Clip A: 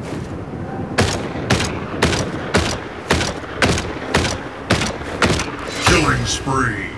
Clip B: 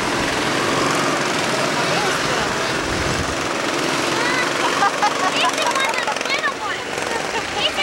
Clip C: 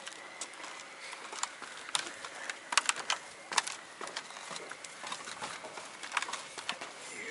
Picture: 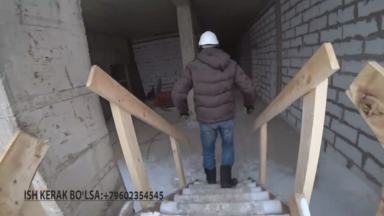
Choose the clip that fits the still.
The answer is C